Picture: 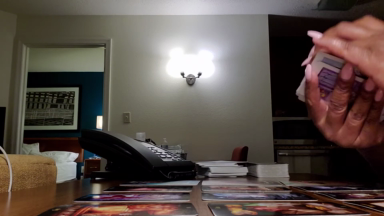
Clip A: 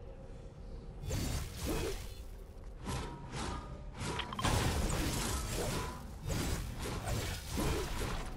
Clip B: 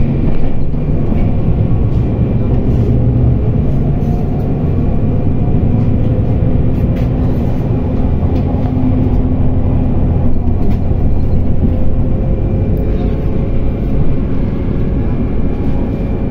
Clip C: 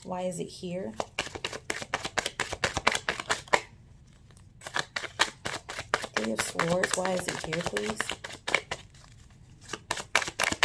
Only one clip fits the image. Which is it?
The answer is C